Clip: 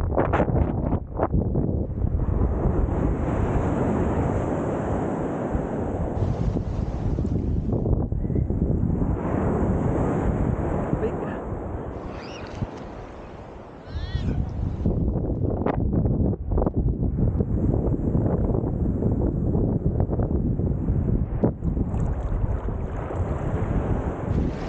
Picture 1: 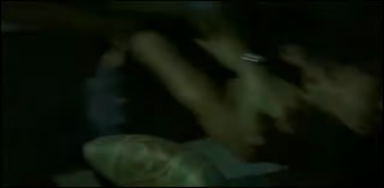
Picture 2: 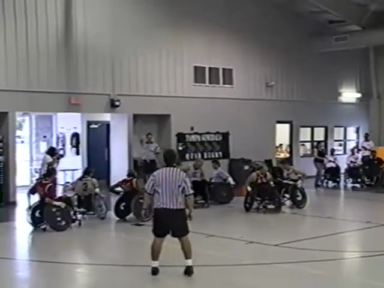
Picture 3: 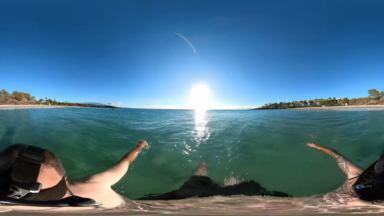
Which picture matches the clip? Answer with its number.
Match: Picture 3